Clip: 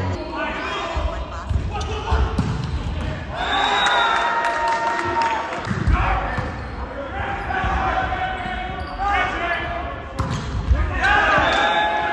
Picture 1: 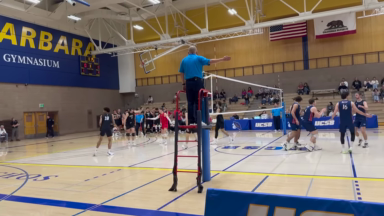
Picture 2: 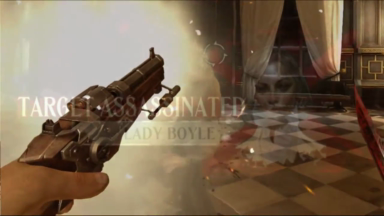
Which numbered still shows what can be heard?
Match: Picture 1